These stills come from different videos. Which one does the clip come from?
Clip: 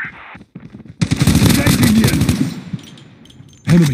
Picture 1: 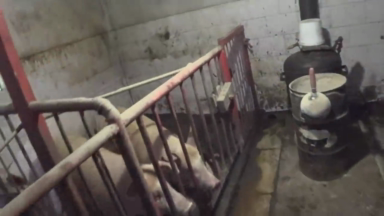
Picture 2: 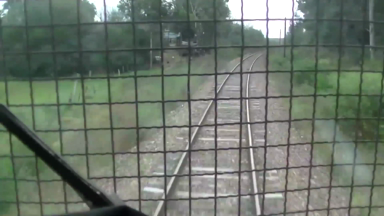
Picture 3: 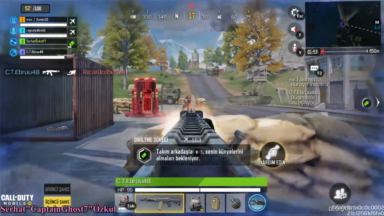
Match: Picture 3